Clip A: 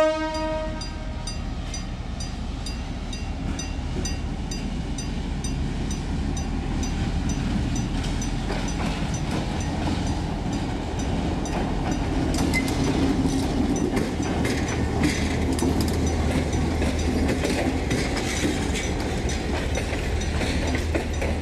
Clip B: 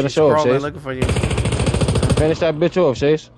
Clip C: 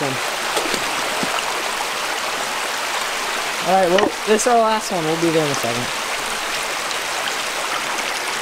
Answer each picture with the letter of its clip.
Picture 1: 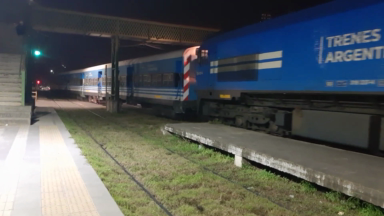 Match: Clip A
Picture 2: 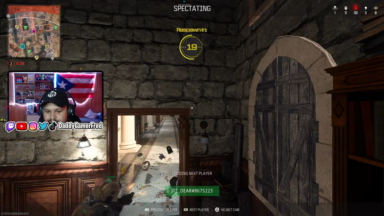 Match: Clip B